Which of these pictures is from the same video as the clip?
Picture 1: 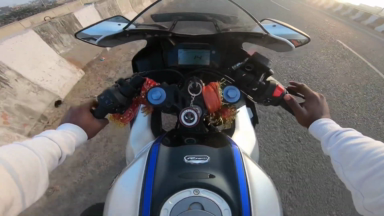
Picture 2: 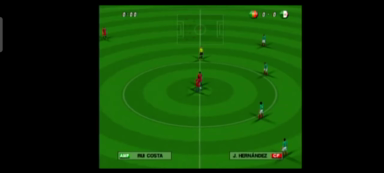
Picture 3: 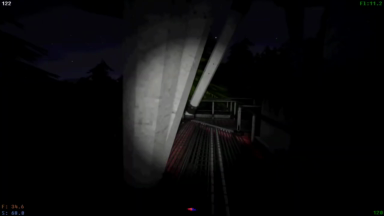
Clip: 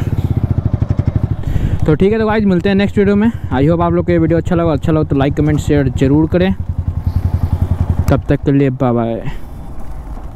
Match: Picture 1